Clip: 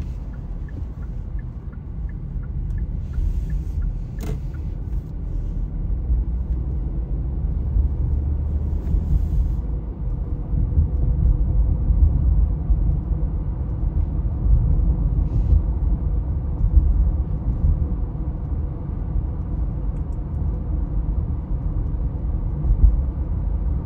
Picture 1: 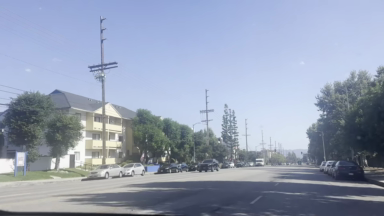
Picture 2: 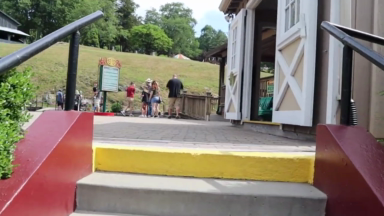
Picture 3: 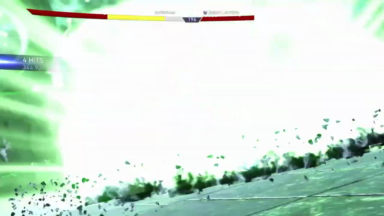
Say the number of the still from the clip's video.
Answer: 1